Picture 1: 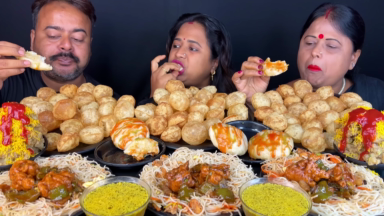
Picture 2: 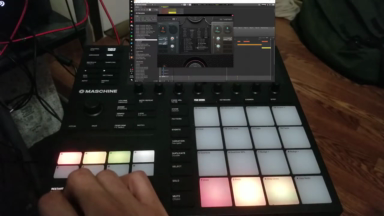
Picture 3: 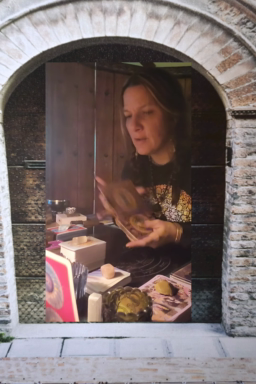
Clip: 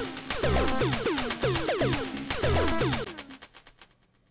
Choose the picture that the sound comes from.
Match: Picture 2